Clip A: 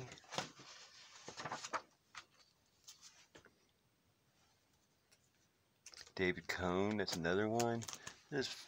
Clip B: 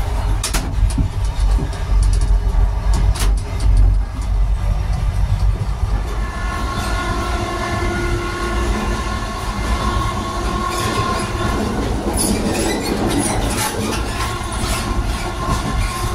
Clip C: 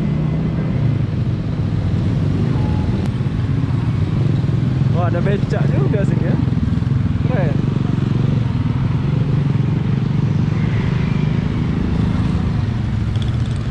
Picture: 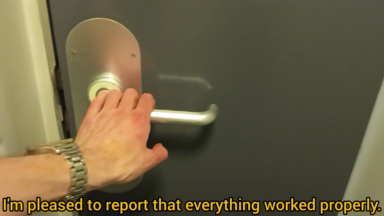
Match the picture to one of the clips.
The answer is B